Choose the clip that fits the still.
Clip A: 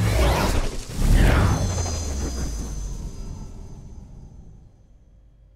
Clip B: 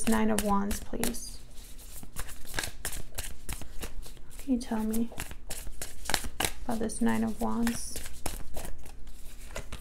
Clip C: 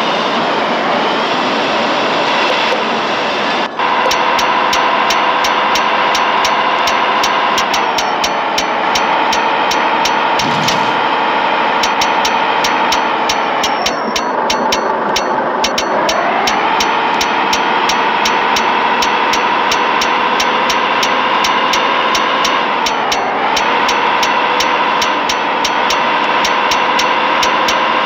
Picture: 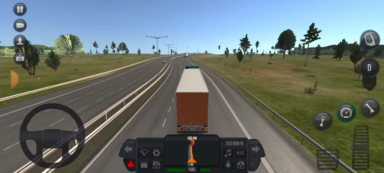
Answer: C